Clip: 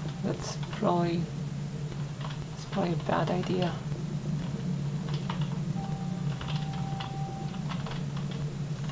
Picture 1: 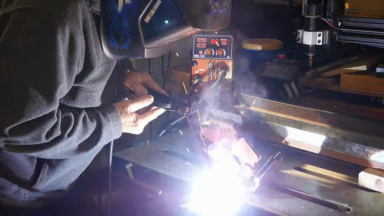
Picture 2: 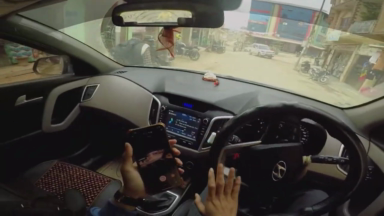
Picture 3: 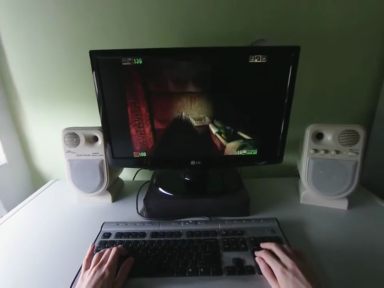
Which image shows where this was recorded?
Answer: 3